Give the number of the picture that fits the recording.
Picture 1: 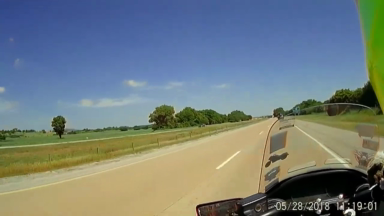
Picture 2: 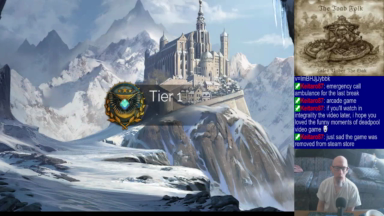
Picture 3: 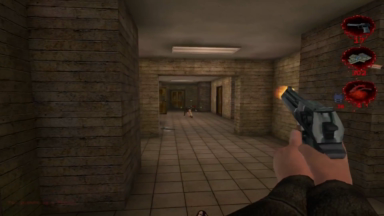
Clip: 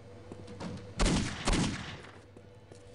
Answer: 3